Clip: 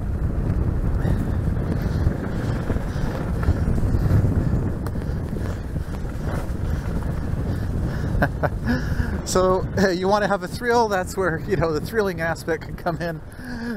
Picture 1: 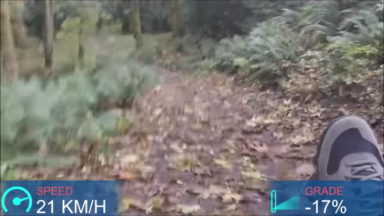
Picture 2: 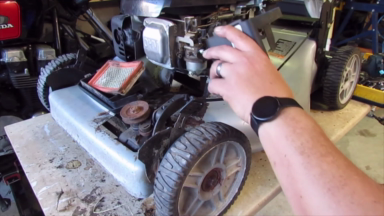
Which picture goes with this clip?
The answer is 1